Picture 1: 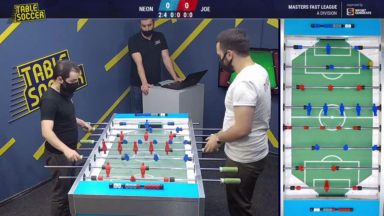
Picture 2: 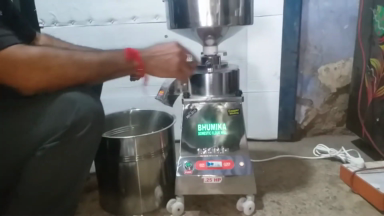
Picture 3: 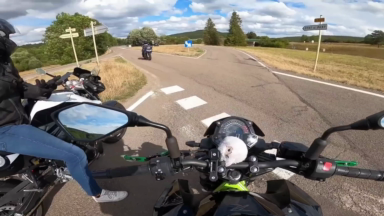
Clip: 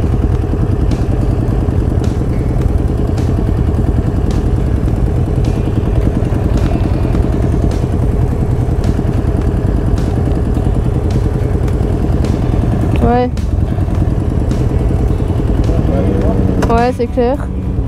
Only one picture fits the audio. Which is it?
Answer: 3